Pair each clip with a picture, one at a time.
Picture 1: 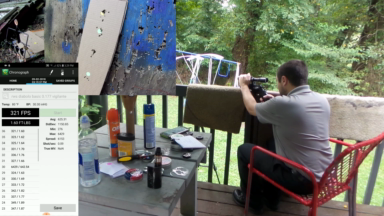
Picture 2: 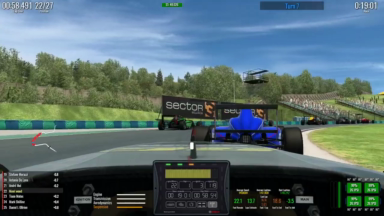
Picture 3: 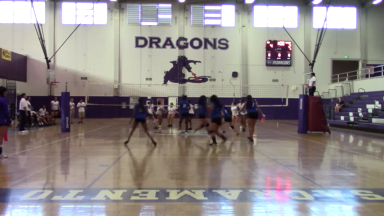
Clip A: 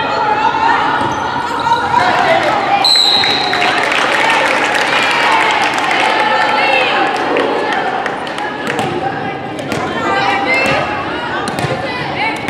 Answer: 3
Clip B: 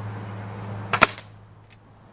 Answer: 1